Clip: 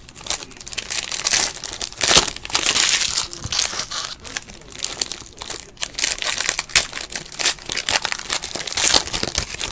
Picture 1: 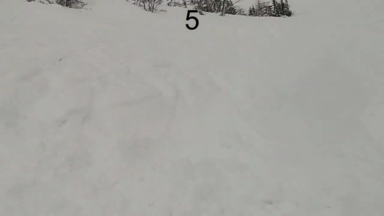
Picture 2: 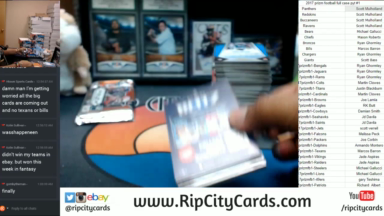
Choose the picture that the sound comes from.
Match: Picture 2